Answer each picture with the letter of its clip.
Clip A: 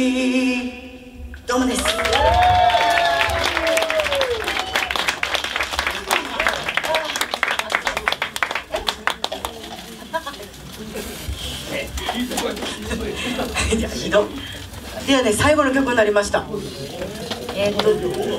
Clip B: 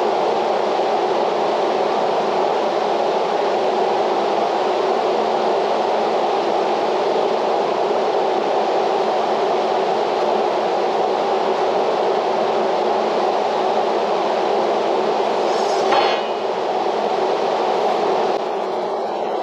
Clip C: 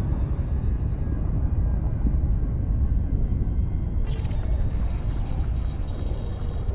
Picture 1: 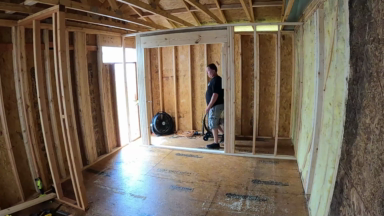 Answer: B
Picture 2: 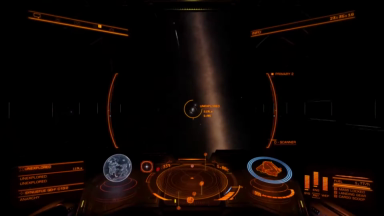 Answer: C